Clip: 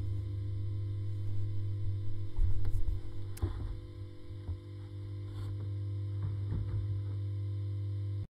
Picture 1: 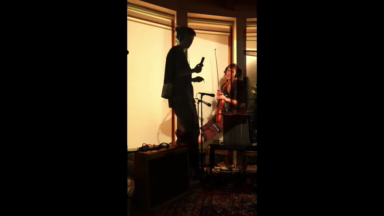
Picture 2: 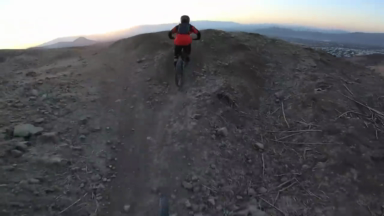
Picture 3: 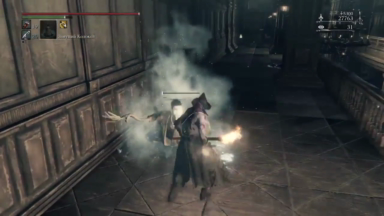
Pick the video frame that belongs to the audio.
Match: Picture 1